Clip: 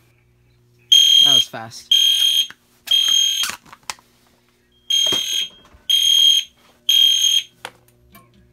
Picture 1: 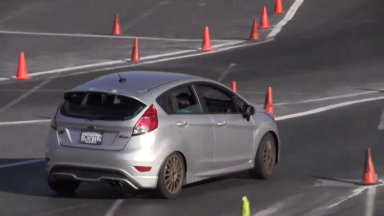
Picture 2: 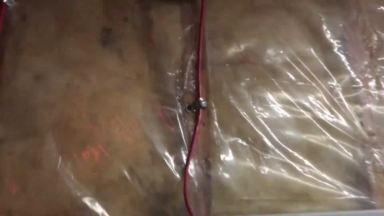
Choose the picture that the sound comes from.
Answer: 2